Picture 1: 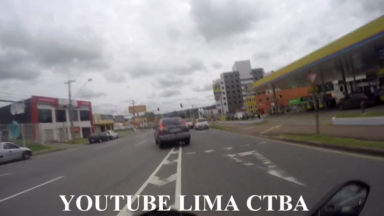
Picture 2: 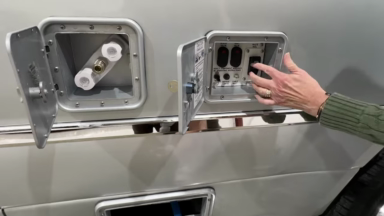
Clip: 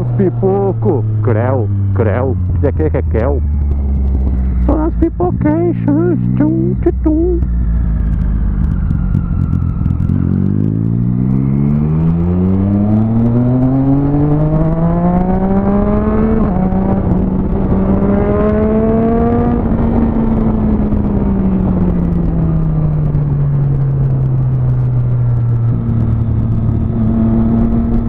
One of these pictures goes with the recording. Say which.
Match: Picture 1